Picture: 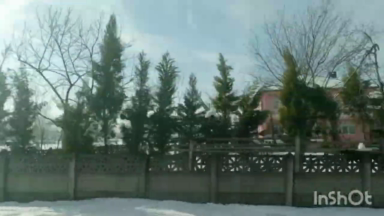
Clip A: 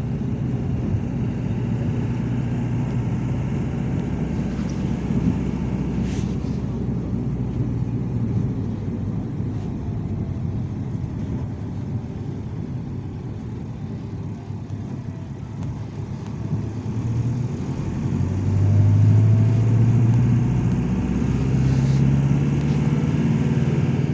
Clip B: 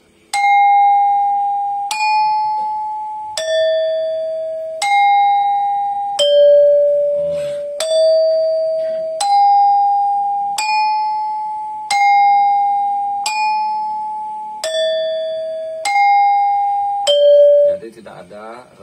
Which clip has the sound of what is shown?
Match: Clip A